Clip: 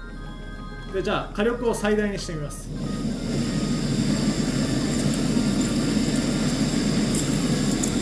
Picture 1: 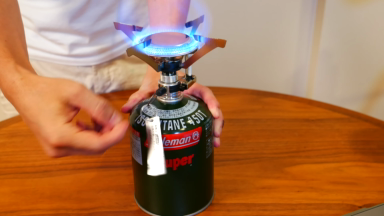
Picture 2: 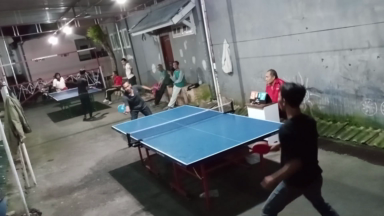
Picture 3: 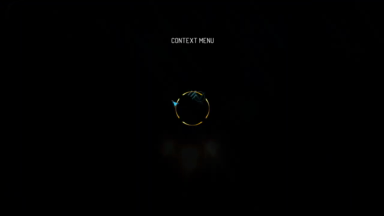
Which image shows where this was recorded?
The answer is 1